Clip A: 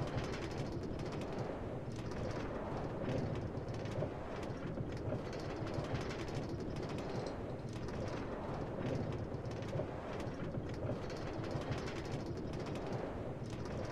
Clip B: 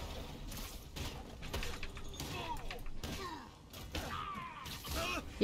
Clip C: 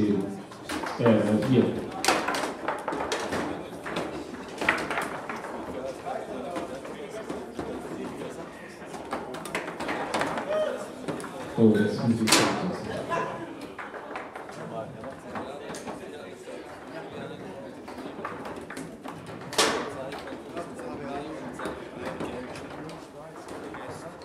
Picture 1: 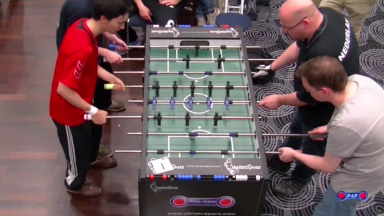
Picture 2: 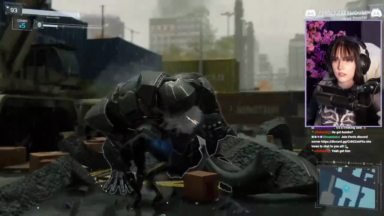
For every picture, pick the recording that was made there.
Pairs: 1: C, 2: B